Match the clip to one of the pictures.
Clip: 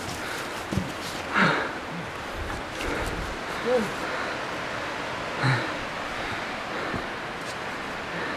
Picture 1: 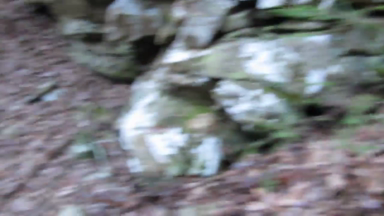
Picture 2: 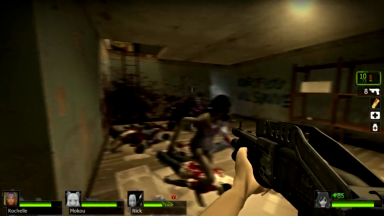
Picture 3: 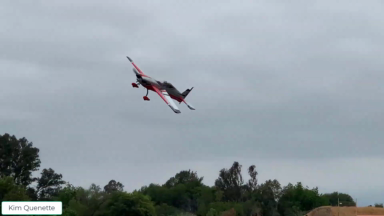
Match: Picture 1